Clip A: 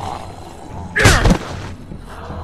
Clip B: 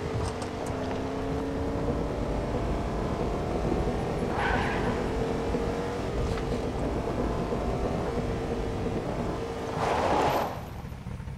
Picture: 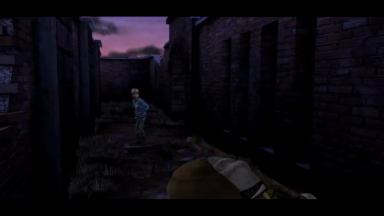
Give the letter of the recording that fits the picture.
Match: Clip A